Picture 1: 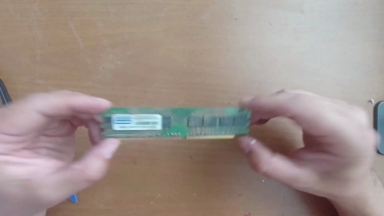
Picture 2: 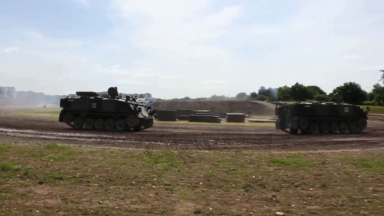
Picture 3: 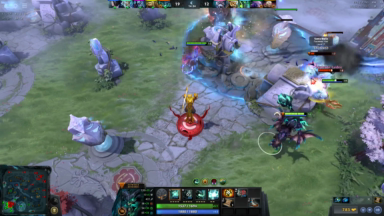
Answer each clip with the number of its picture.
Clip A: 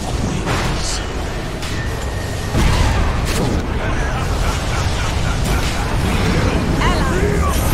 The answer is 3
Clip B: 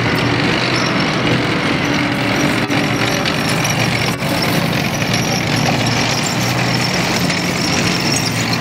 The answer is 2